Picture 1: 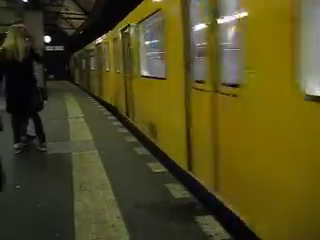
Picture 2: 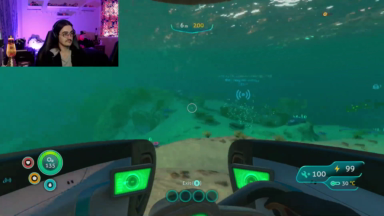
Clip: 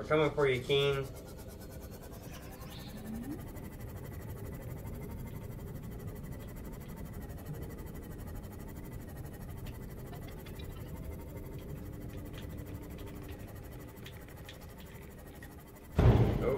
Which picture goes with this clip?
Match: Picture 2